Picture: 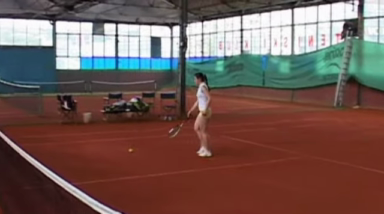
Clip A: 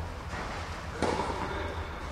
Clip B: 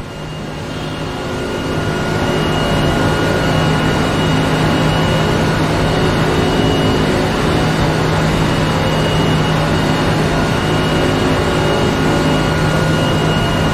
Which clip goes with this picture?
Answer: A